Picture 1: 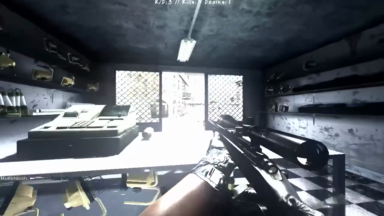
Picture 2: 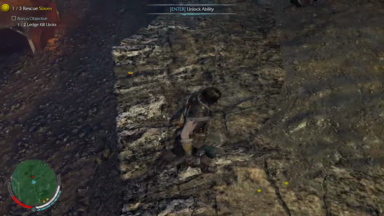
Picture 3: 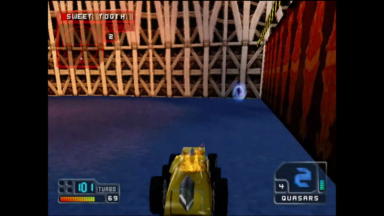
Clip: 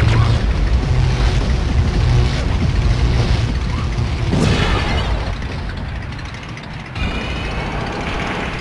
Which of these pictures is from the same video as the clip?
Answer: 3